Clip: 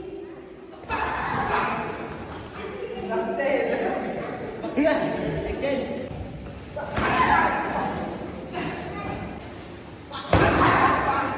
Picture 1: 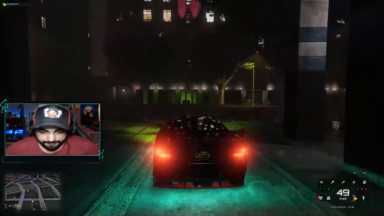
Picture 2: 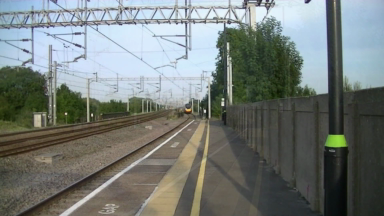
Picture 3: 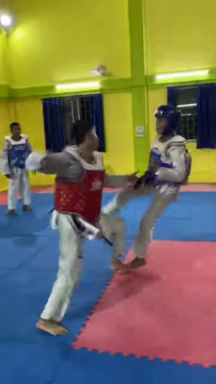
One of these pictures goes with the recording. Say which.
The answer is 3